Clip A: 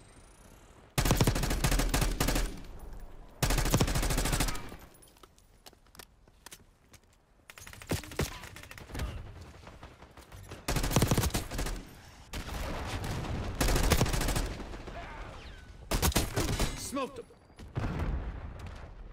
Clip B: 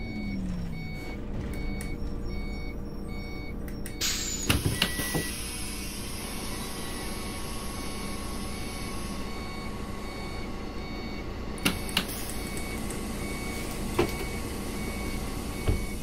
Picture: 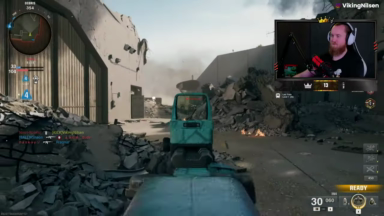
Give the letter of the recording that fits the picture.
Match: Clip A